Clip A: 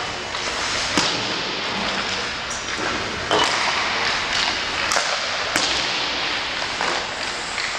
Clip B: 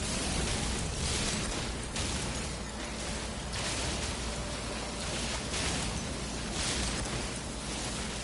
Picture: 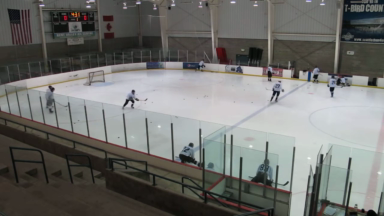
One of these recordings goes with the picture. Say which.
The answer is A